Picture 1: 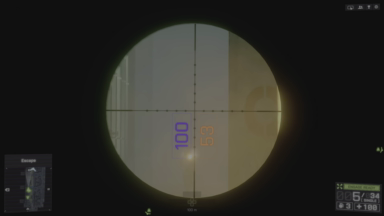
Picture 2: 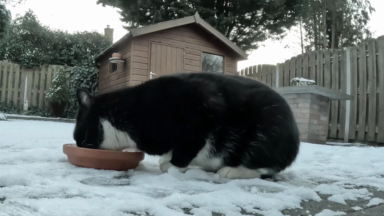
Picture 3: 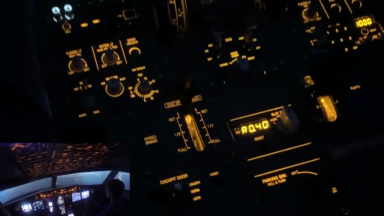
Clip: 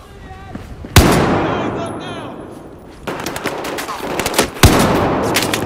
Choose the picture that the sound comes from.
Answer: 1